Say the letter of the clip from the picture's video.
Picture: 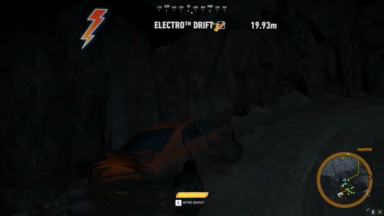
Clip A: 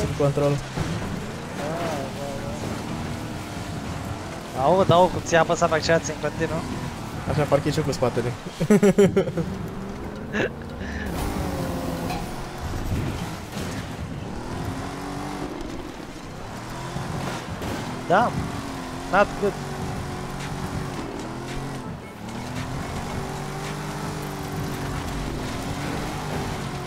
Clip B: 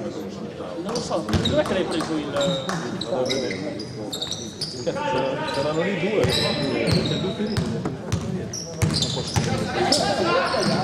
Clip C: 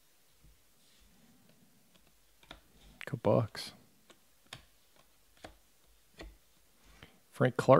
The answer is A